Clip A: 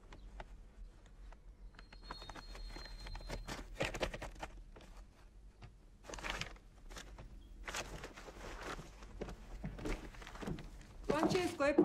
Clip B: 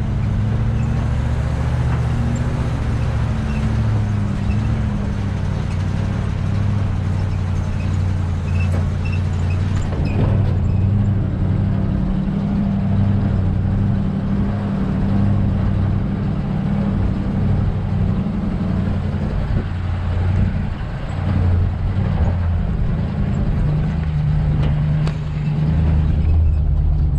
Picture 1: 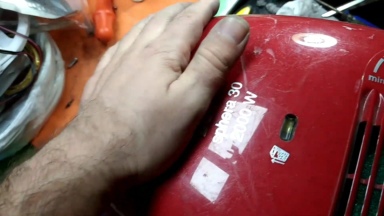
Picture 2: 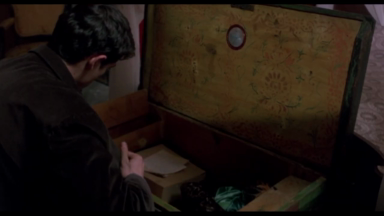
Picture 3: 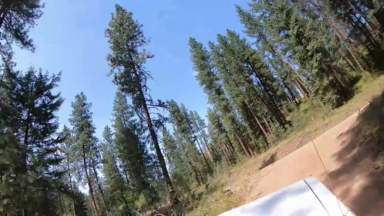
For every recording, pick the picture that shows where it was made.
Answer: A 2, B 3